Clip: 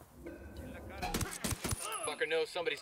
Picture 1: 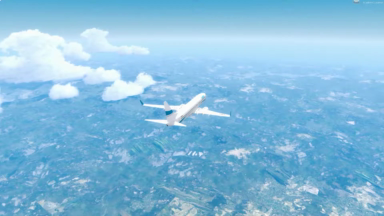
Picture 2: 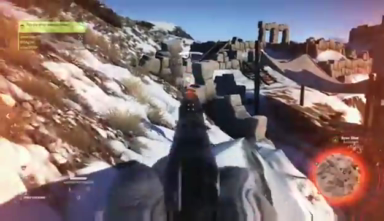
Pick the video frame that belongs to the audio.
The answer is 2